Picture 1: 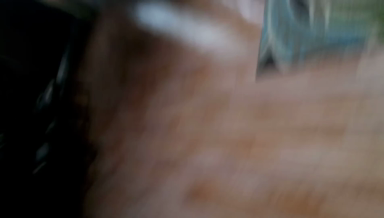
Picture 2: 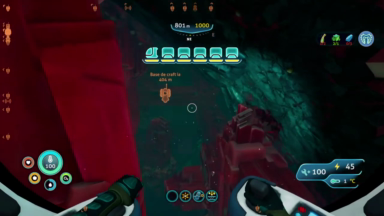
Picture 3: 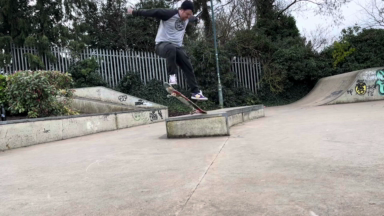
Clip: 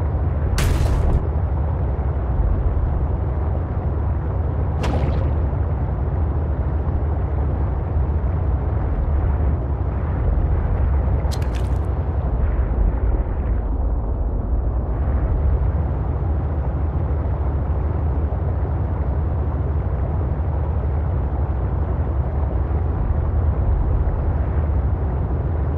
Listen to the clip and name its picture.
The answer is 2